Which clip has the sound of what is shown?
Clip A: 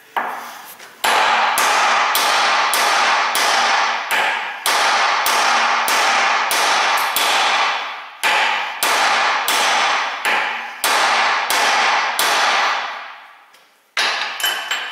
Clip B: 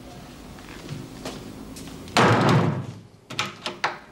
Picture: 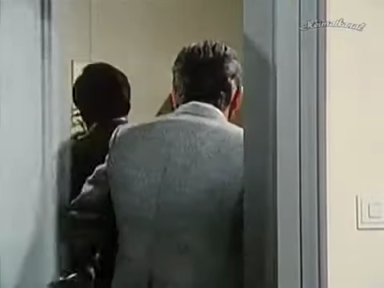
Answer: B